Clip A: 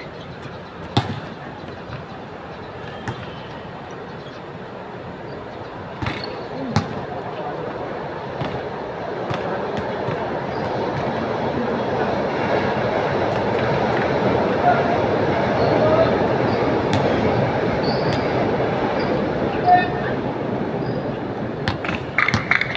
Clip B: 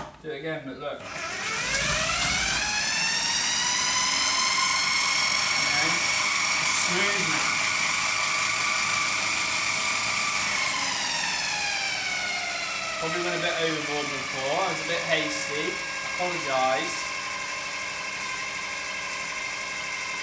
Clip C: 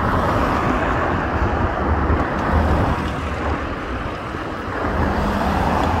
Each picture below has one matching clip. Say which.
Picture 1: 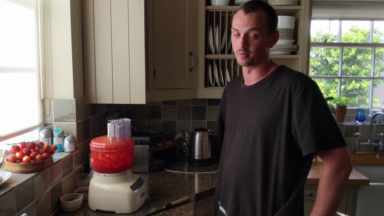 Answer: B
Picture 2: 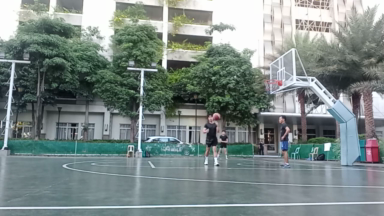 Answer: A